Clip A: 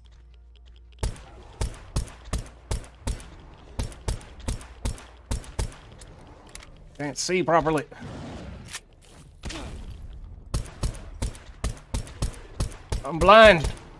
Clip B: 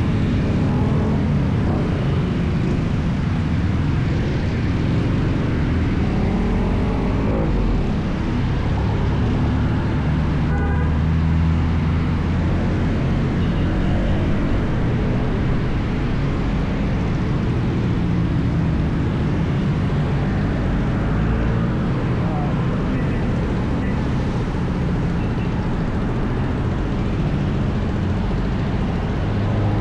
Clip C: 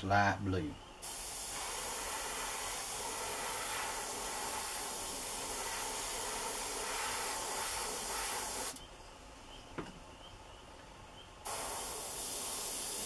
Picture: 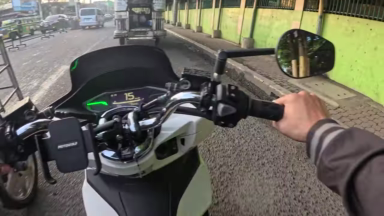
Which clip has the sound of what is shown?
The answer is B